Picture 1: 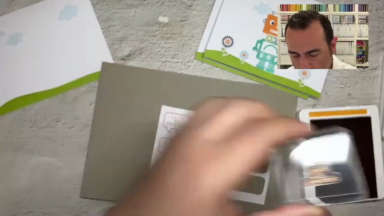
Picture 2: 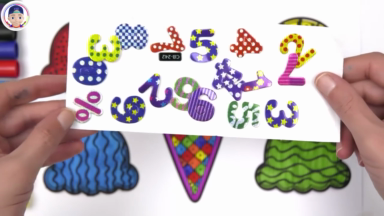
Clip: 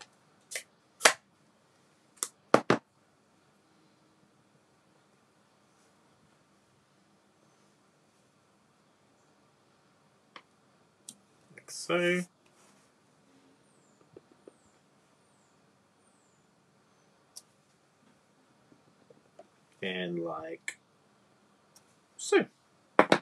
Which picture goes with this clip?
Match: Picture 1